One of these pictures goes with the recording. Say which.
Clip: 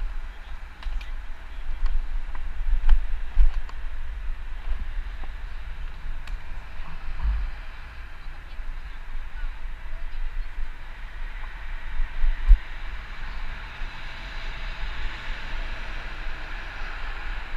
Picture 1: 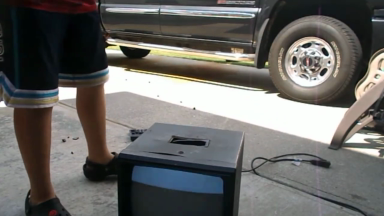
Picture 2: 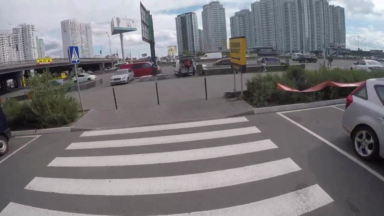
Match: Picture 2